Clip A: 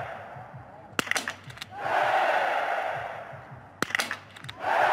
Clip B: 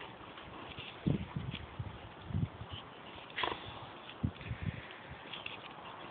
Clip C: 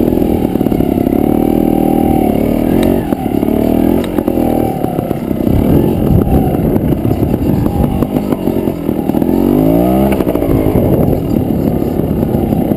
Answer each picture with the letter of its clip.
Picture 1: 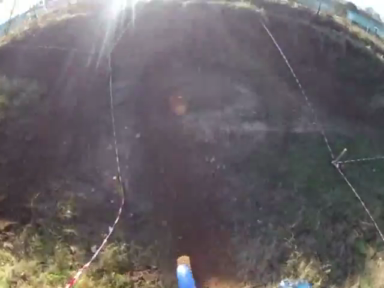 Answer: C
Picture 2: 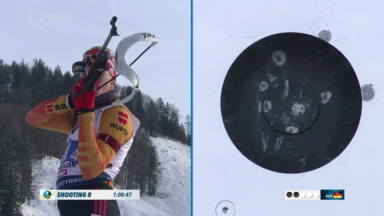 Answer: A